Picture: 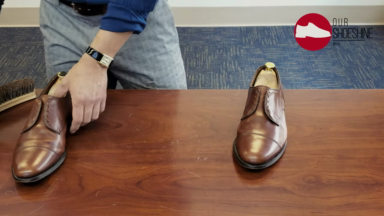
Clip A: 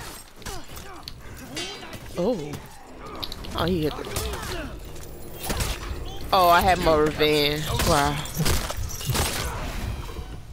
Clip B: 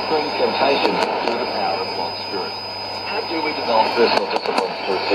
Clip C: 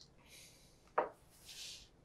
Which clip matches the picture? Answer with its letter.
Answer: C